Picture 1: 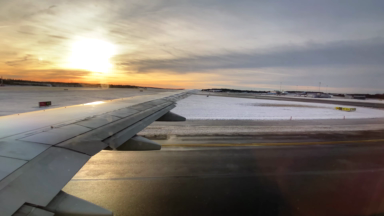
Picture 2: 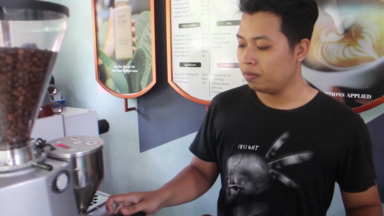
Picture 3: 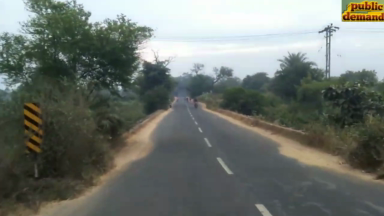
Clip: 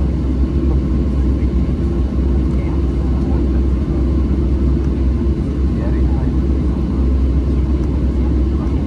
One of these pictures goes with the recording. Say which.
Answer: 1